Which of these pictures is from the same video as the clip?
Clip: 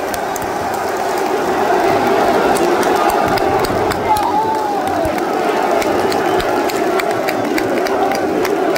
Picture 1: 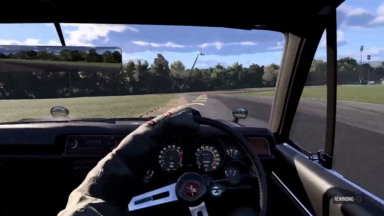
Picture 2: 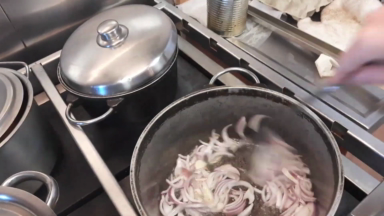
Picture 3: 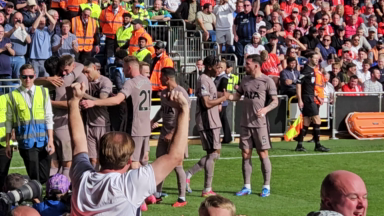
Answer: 3